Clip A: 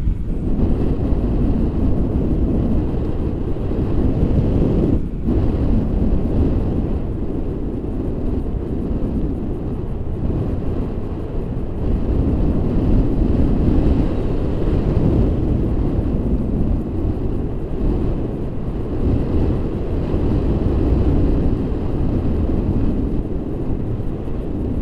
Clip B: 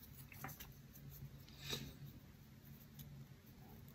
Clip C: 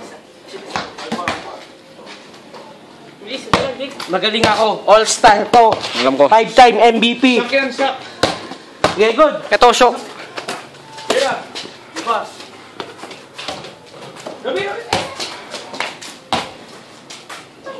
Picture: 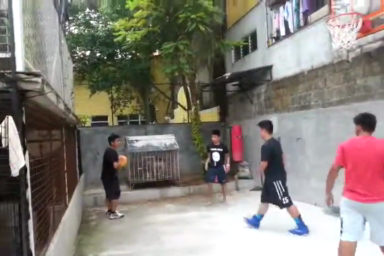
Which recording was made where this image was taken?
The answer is C